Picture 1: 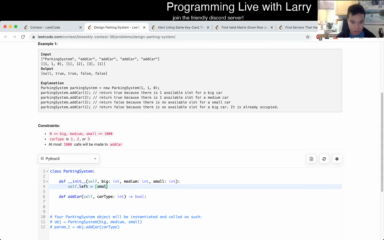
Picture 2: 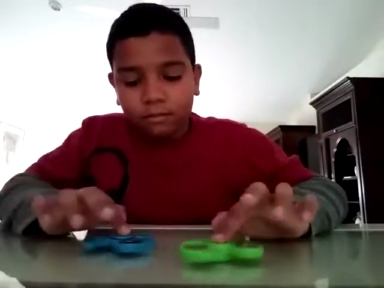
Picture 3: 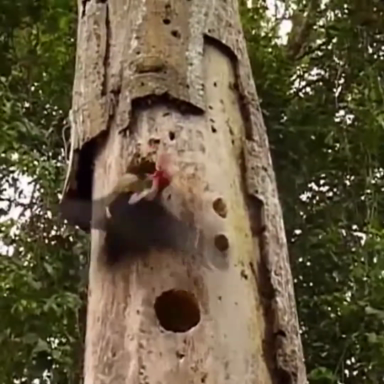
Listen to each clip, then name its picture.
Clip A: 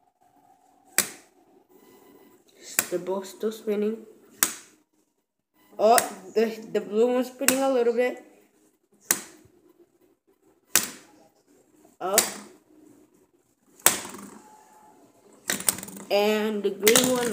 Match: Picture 2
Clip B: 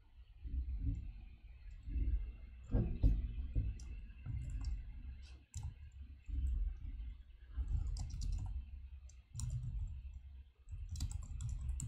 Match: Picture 1